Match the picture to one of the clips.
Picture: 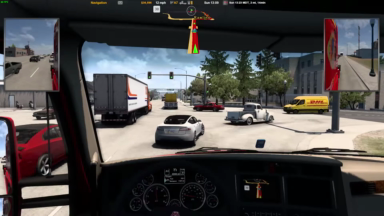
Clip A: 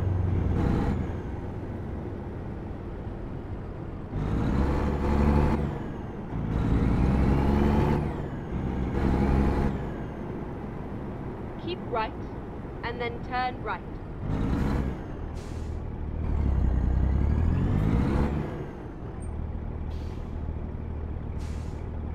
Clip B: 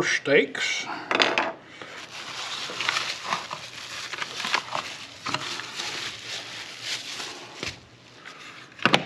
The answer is A